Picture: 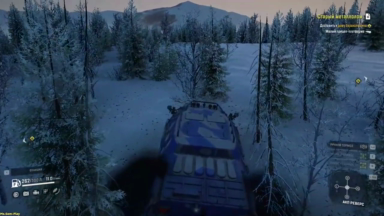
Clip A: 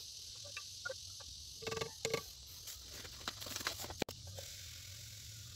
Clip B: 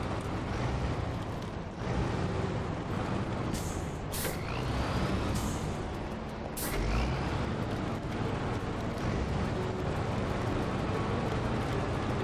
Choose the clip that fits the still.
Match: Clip B